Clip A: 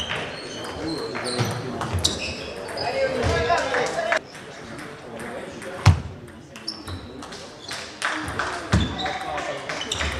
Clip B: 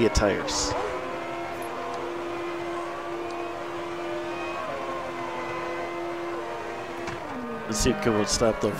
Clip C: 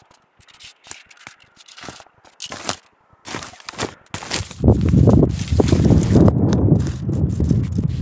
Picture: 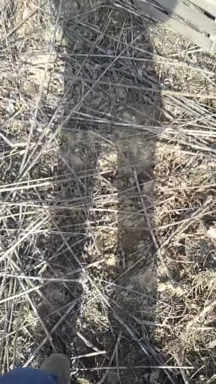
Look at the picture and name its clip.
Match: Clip C